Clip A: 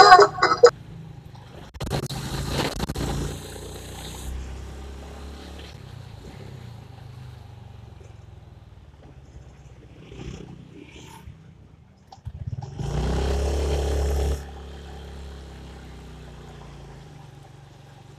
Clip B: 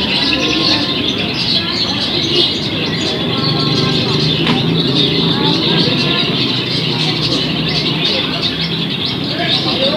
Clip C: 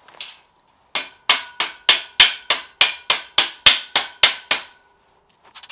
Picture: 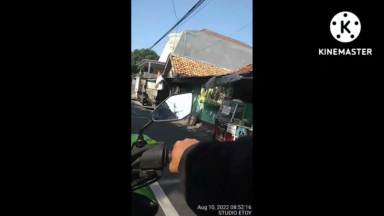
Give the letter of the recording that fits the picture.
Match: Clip A